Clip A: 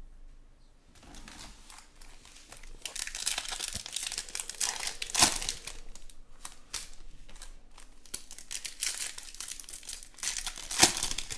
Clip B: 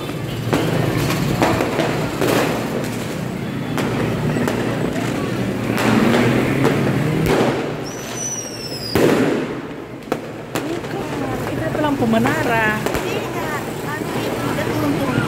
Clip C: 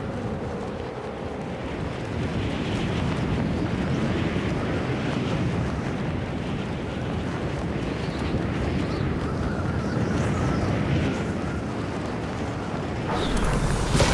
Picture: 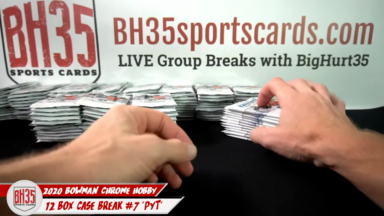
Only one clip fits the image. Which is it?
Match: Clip A